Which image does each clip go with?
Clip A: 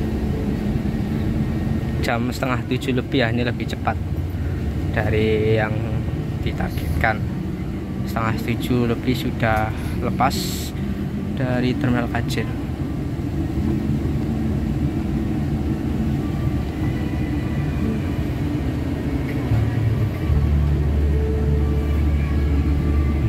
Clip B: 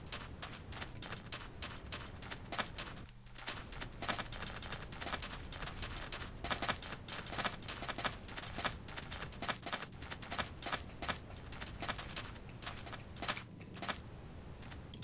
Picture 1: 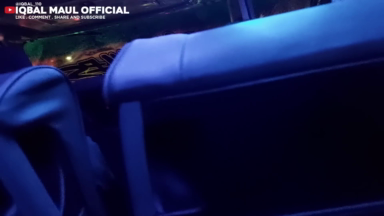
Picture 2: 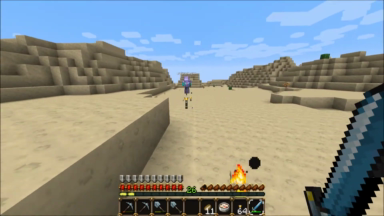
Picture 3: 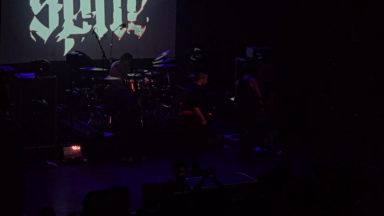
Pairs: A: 1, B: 2